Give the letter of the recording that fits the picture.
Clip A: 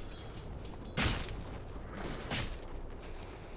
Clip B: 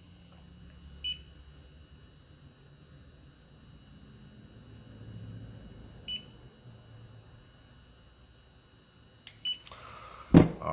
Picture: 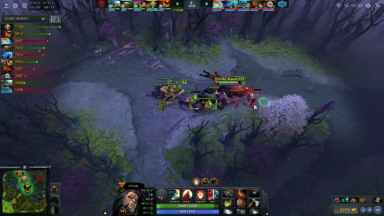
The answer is A